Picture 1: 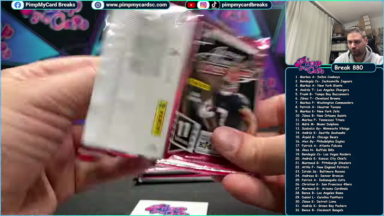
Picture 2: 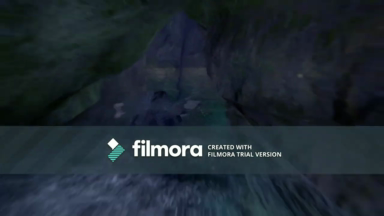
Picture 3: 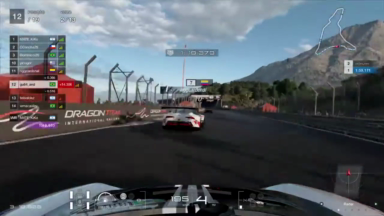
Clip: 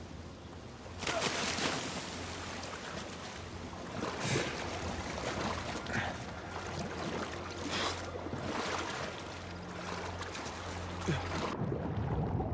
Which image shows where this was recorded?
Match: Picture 2